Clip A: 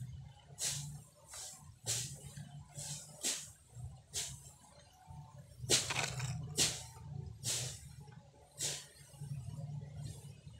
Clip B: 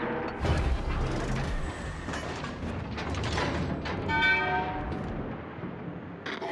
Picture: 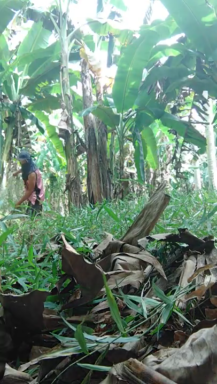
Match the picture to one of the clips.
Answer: A